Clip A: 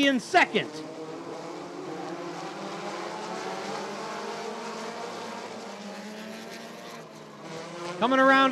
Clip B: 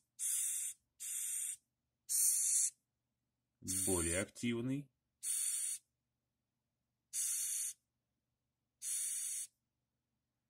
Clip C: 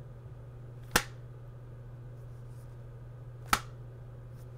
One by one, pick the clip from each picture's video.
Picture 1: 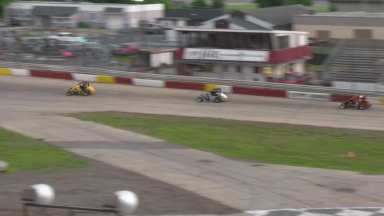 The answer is A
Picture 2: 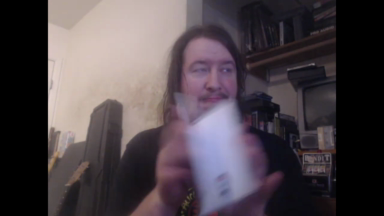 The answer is C